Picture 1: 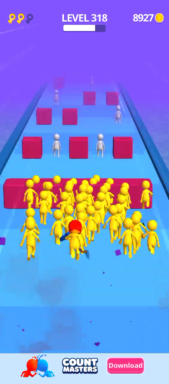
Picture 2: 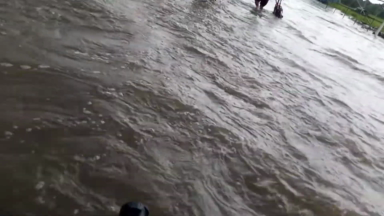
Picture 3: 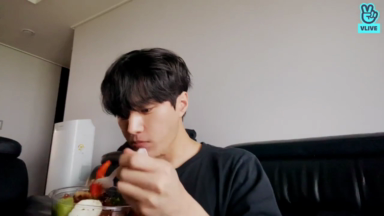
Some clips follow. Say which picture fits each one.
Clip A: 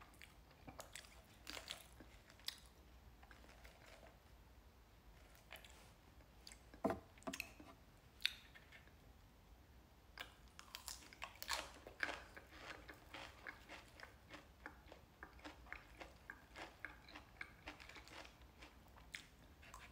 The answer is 3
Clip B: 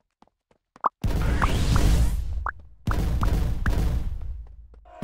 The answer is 1